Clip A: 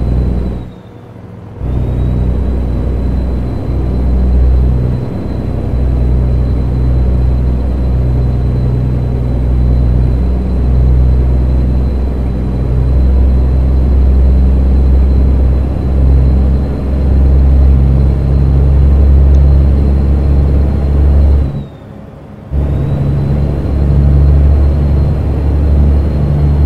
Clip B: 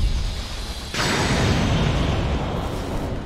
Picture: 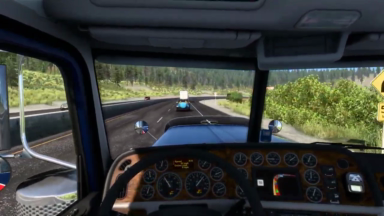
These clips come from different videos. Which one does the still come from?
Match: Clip A